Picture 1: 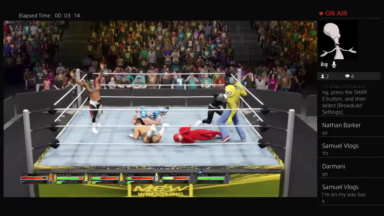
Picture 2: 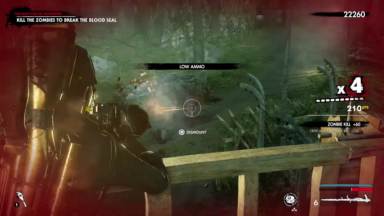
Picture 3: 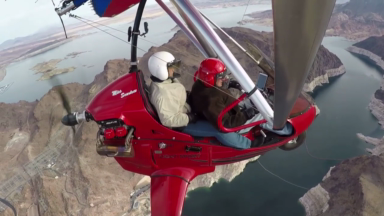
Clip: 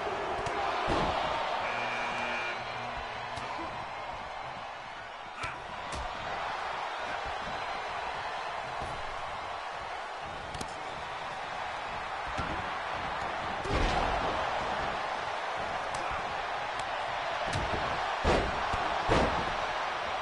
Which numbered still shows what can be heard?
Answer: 1